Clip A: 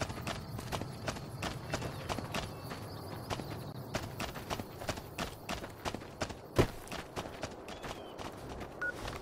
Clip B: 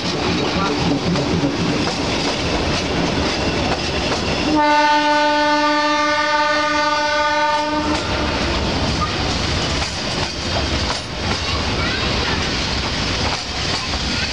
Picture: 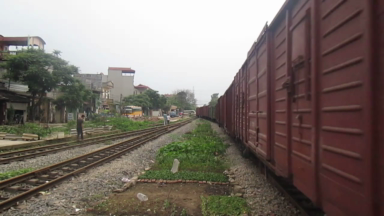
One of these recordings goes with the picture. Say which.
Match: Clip B